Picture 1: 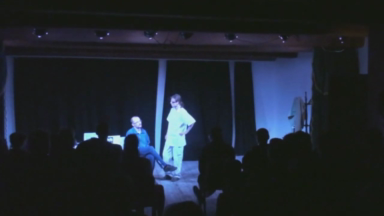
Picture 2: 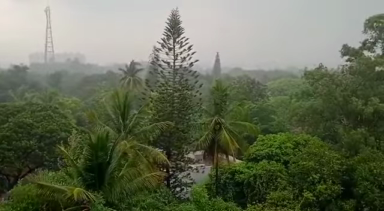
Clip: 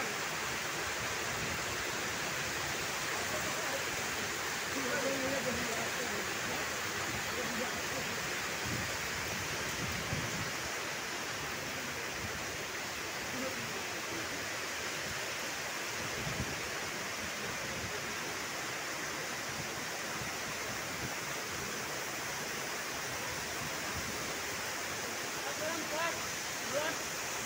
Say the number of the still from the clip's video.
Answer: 2